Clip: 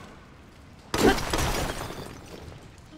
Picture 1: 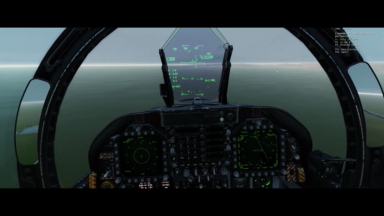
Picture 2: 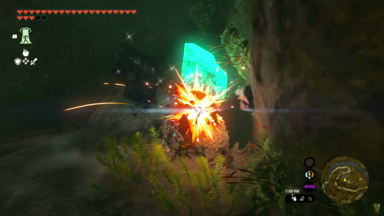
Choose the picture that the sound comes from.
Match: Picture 2